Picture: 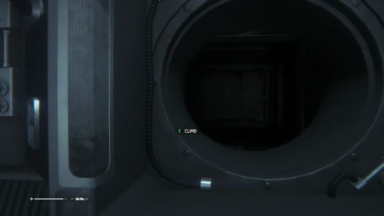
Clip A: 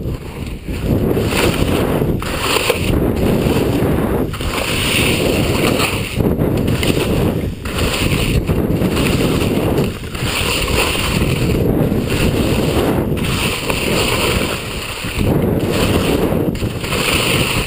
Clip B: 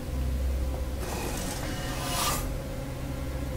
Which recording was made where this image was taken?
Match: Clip B